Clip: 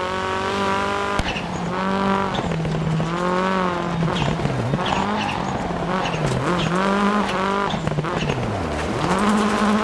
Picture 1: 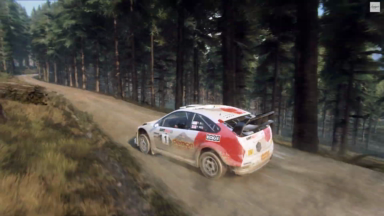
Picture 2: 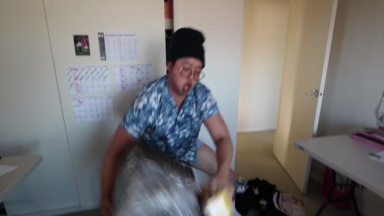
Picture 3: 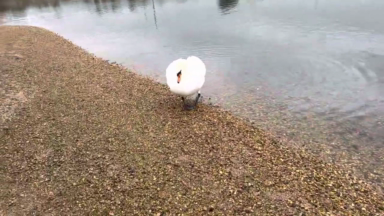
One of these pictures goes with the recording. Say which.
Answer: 1